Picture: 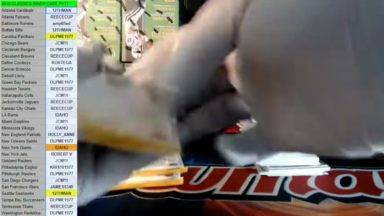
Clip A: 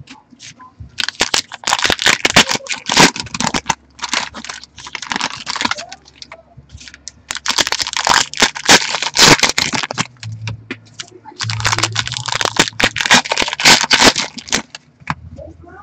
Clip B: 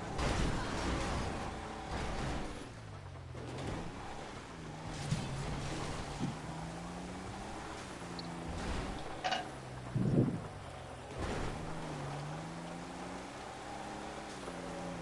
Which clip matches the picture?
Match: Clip A